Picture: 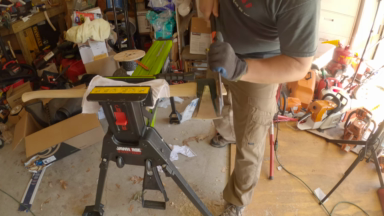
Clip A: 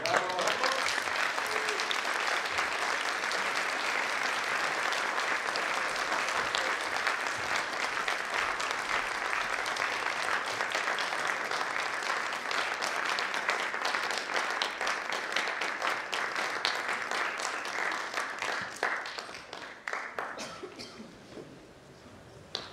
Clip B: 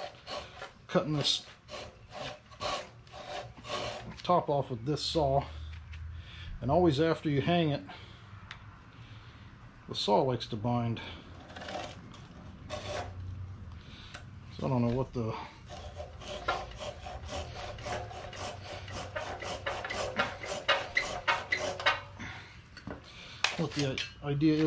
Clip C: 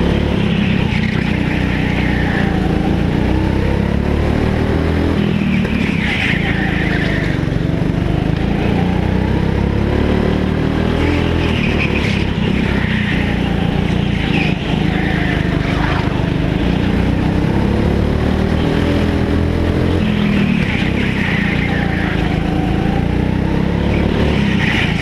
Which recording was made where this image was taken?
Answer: B